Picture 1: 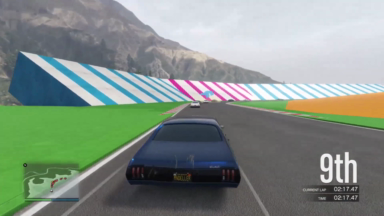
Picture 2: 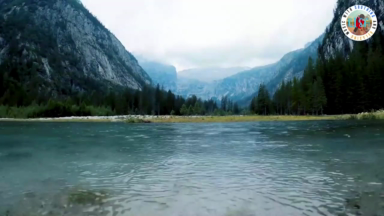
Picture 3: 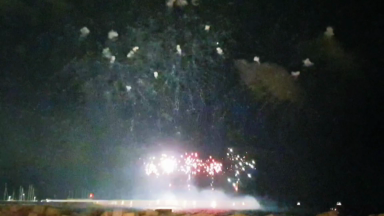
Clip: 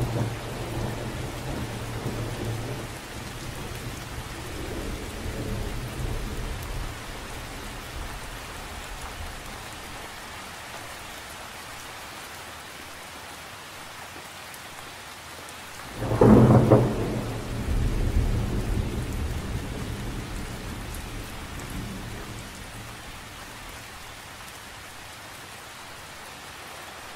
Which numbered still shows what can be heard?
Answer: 2